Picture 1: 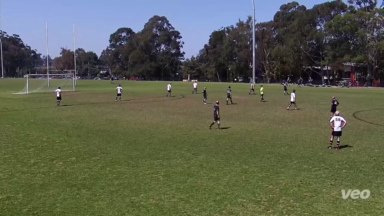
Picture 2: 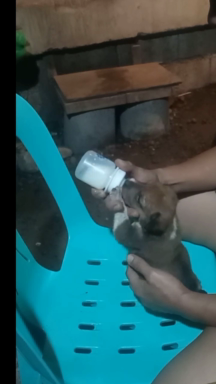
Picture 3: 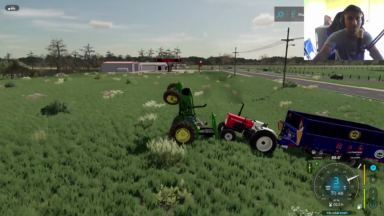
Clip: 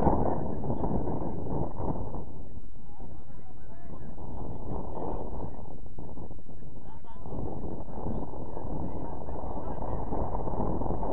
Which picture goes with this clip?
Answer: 1